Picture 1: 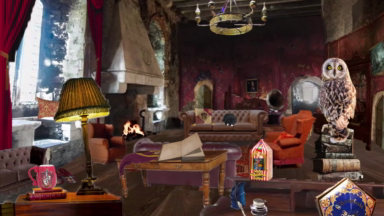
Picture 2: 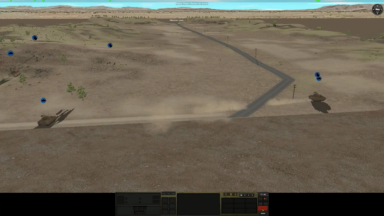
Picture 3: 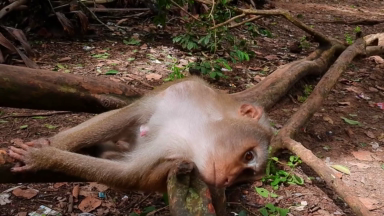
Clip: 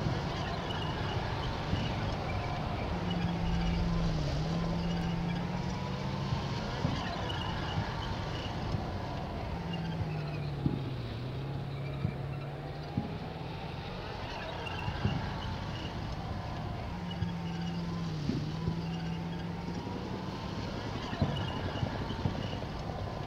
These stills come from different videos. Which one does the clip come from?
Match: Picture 2